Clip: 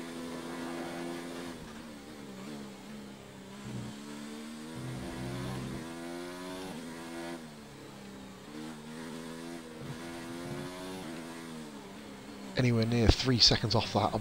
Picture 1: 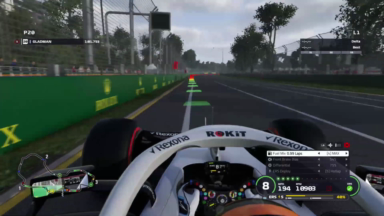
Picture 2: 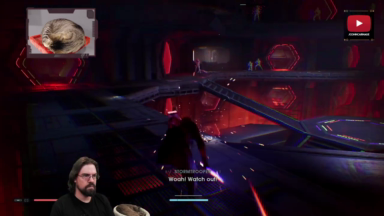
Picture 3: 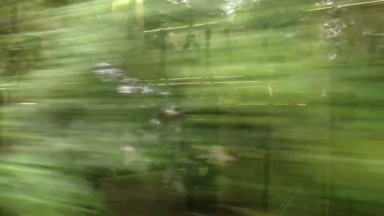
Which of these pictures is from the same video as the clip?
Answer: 1